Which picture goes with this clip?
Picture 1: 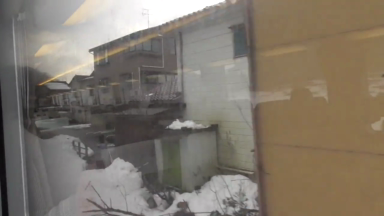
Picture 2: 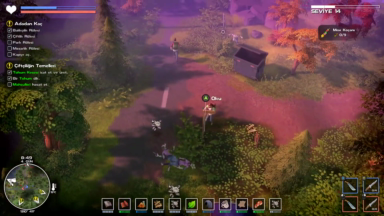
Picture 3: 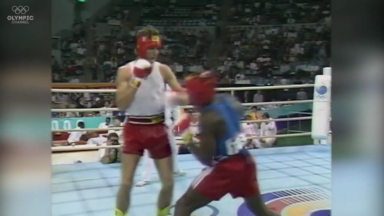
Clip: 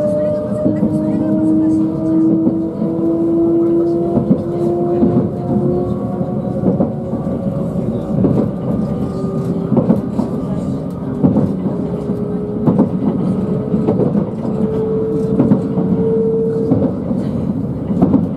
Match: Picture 1